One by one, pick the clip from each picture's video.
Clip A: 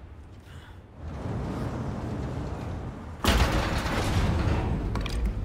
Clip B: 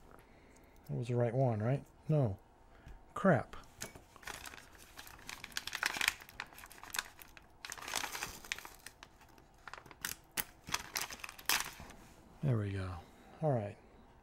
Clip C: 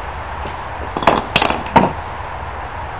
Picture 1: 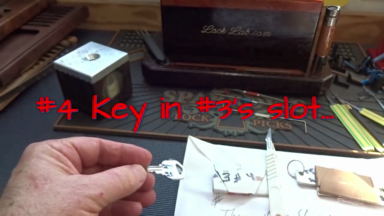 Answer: B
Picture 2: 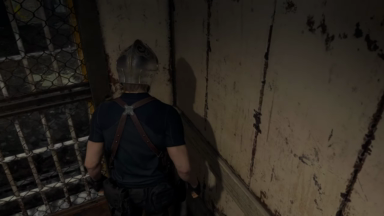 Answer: A